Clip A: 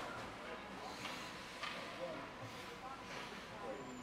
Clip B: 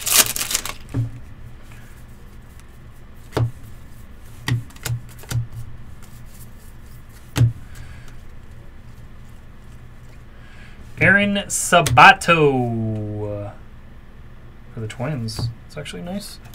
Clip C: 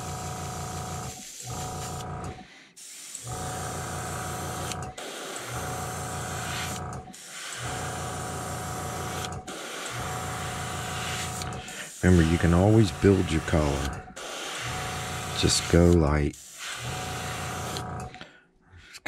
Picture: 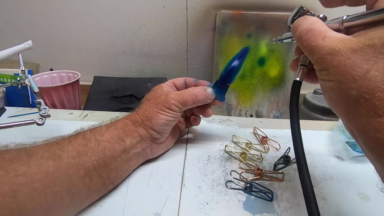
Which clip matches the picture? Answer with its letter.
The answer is C